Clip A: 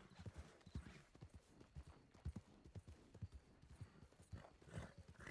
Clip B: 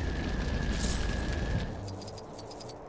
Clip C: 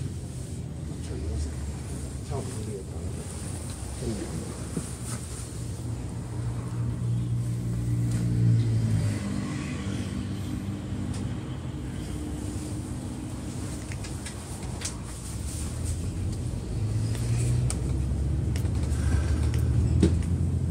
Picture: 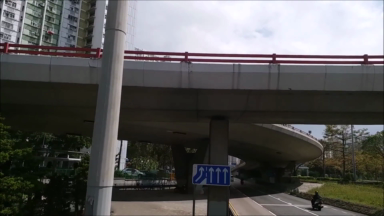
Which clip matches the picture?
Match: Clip C